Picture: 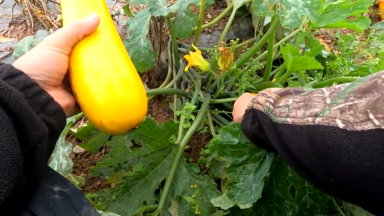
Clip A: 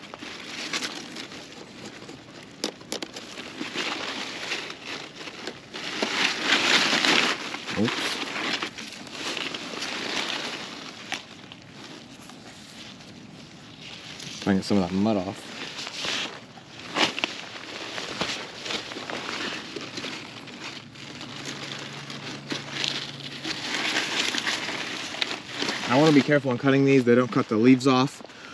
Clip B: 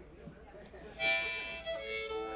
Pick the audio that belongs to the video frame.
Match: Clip A